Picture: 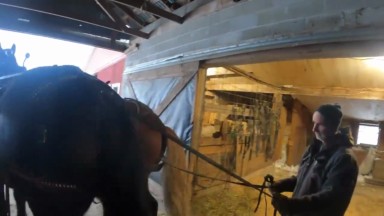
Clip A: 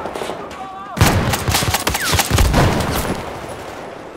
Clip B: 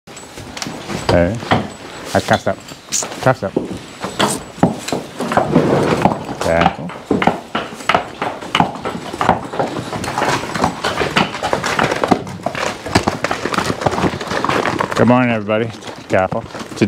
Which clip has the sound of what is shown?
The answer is B